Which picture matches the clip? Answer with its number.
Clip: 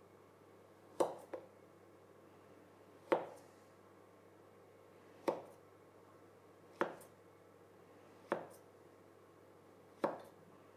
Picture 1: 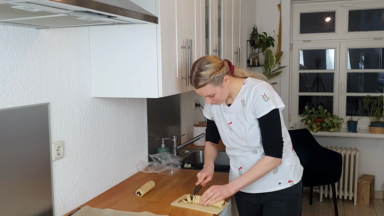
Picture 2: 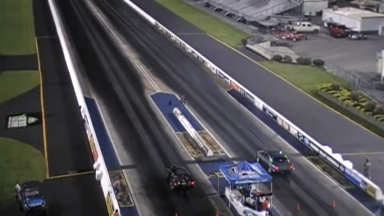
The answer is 1